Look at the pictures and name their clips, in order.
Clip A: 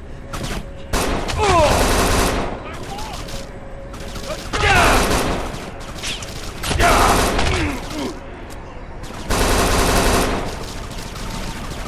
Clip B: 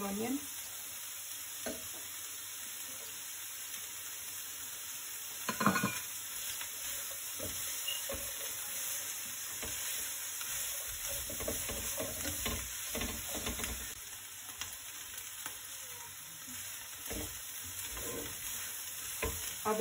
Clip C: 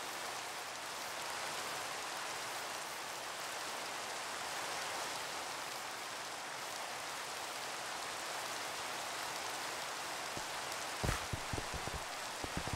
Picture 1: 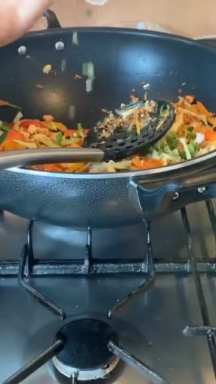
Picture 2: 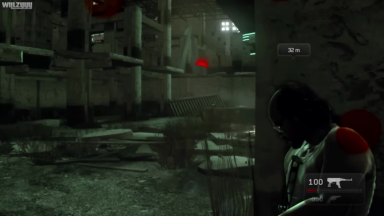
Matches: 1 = B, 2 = A